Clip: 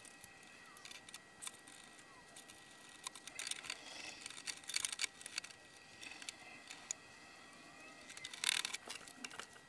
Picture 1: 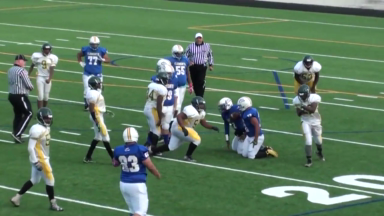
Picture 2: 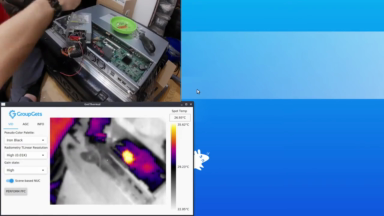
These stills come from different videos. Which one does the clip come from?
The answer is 2